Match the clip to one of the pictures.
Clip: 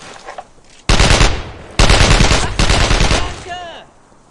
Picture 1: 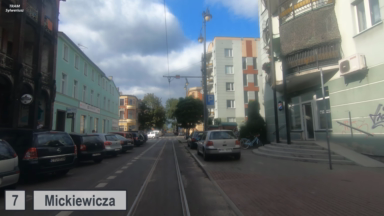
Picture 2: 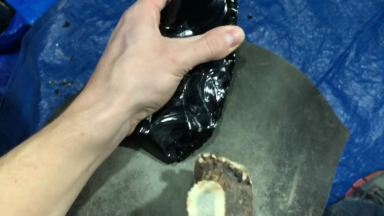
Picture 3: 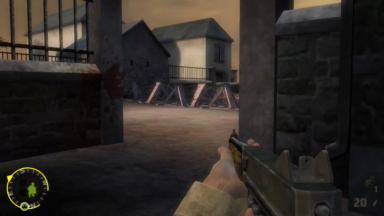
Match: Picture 3